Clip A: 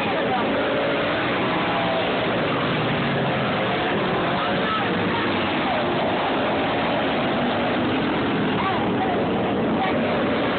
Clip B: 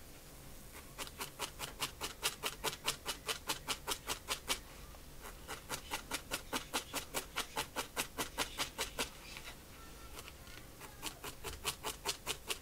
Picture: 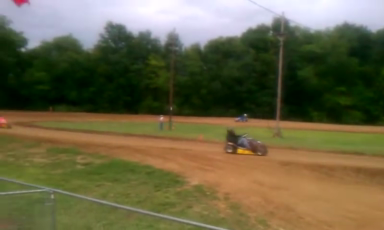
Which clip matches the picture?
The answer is A